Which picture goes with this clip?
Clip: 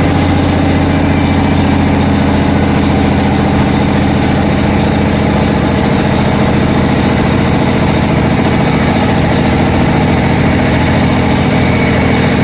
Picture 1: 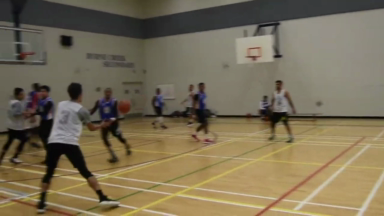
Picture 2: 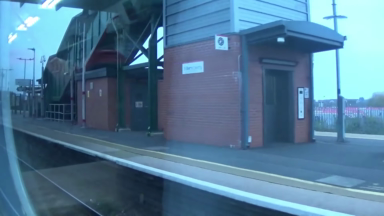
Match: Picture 2